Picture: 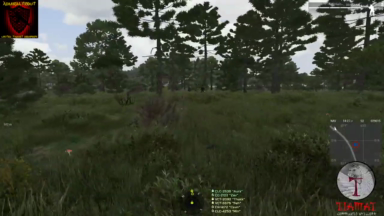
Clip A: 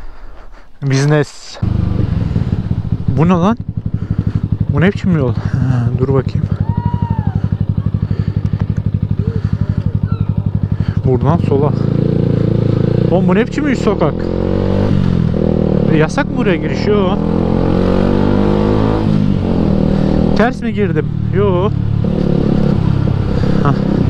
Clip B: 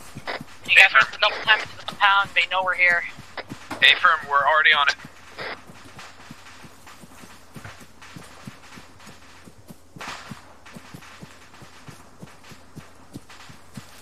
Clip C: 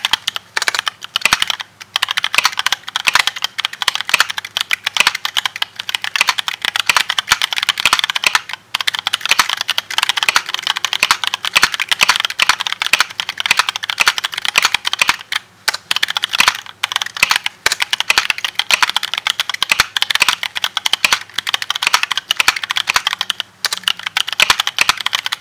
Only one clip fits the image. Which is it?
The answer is B